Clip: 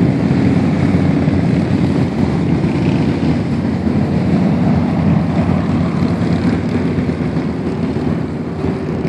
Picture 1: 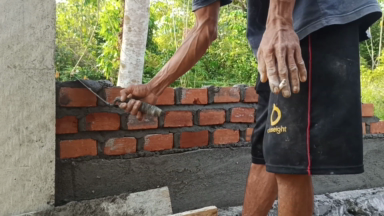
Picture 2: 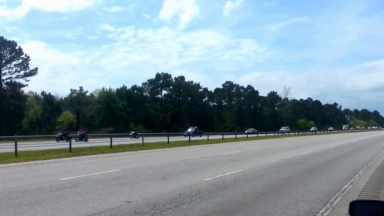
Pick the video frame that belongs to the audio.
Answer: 2